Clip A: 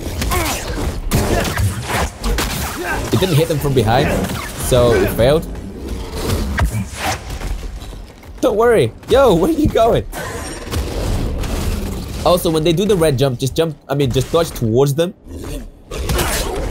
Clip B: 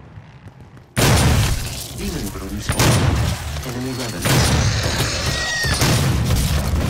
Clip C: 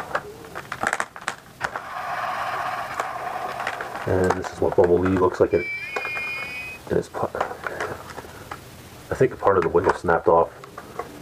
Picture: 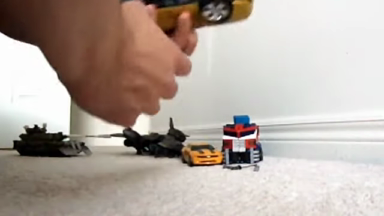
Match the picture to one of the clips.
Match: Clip C